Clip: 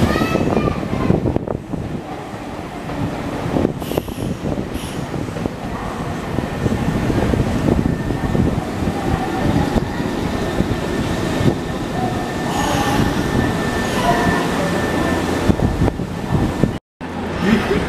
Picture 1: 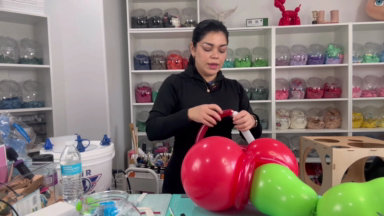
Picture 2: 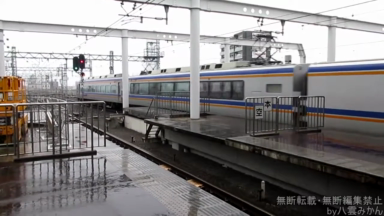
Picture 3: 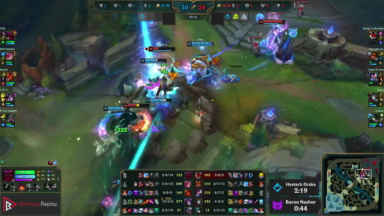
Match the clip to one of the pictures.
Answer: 2